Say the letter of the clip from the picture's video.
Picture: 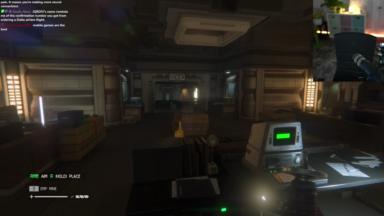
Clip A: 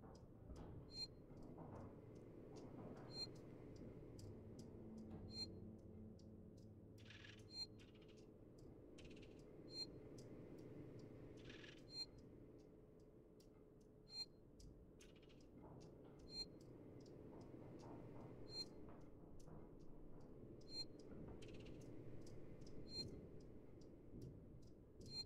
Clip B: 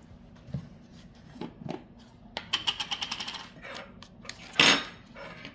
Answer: A